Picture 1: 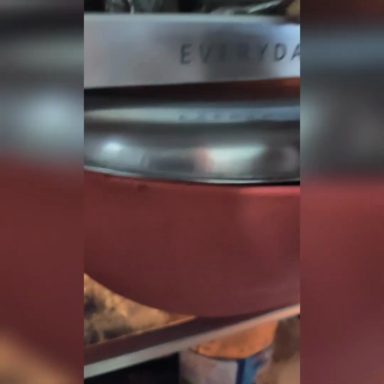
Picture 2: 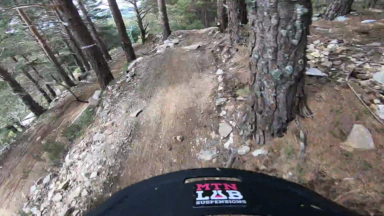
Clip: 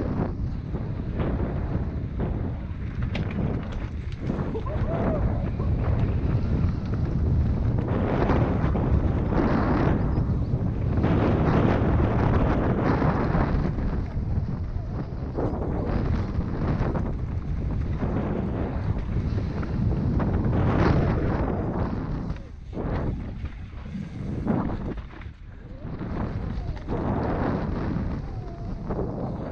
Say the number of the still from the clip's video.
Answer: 2